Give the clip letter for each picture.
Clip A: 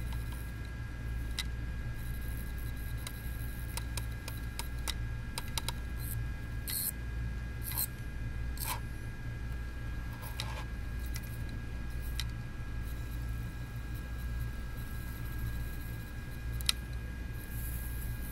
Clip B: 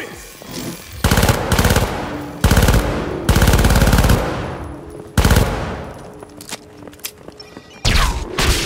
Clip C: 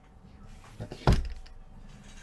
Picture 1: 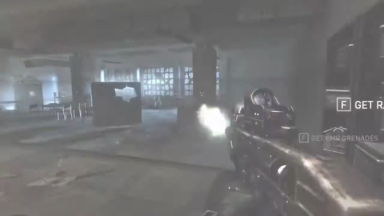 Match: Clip B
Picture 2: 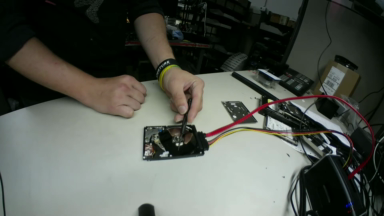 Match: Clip A